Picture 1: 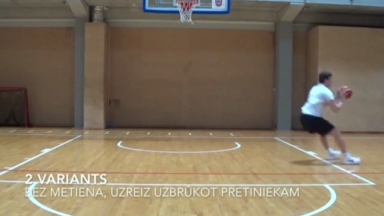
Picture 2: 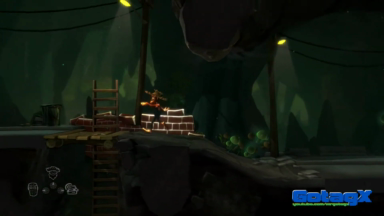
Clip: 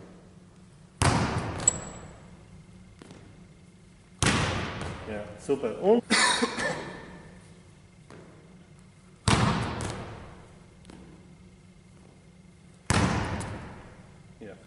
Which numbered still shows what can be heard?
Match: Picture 1